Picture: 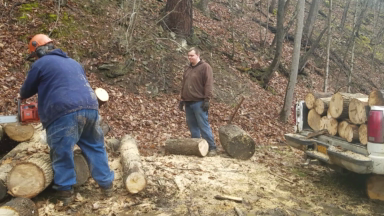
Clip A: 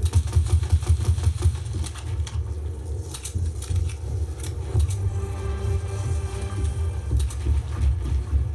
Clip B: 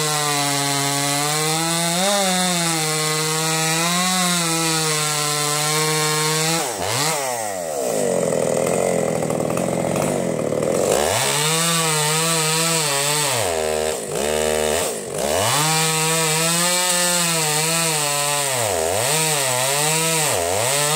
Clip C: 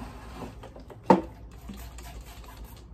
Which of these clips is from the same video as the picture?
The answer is B